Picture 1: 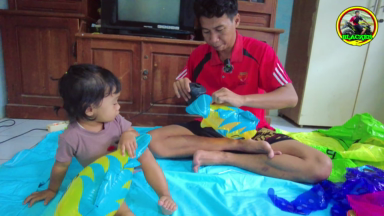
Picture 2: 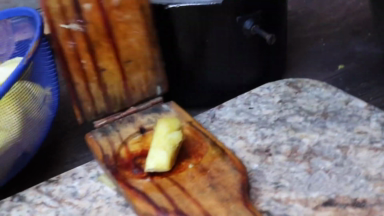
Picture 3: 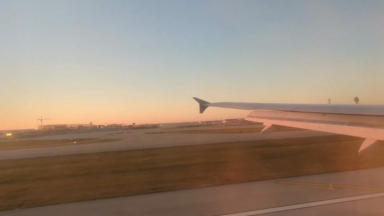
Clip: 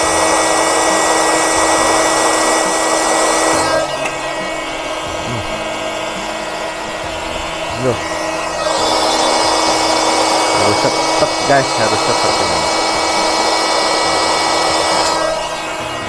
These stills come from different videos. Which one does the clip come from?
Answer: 1